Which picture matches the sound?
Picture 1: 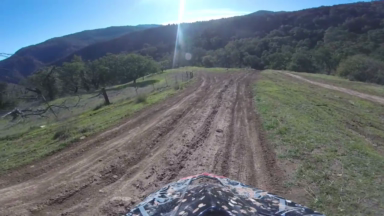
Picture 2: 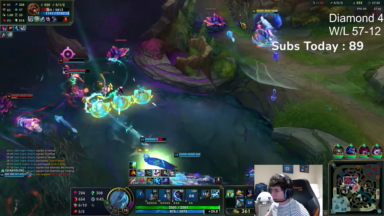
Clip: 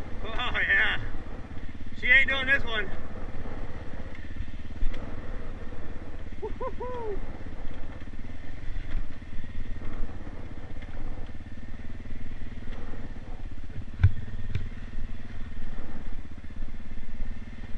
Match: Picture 1